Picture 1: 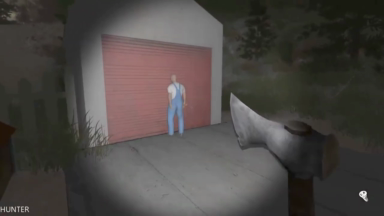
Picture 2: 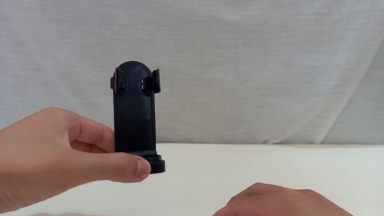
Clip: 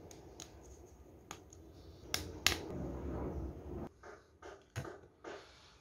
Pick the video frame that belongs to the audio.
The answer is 2